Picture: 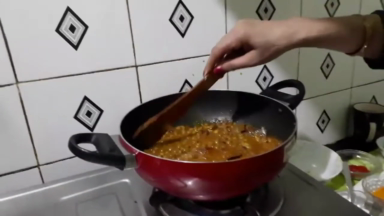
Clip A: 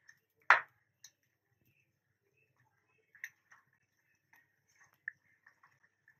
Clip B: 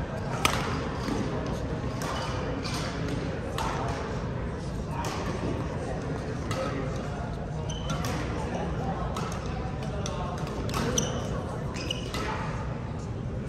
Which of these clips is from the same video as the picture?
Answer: A